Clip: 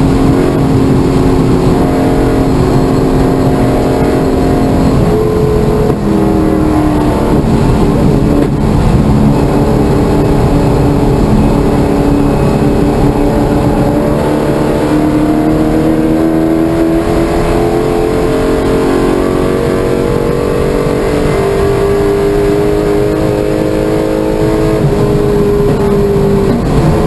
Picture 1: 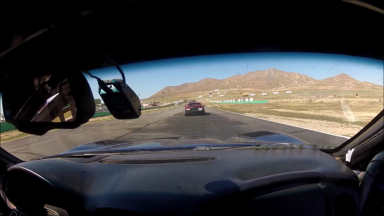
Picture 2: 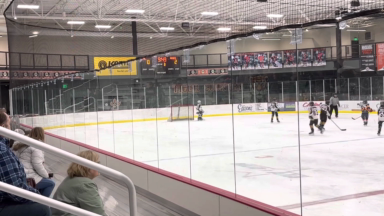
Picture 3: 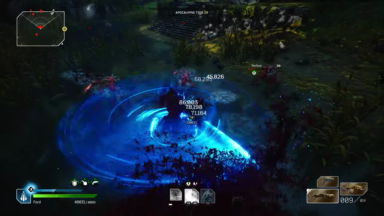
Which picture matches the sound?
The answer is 1